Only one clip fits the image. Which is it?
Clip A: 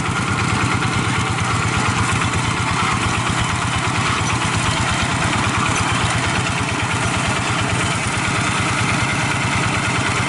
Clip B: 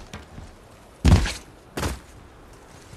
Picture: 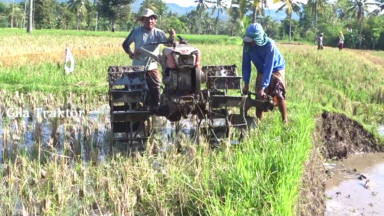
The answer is A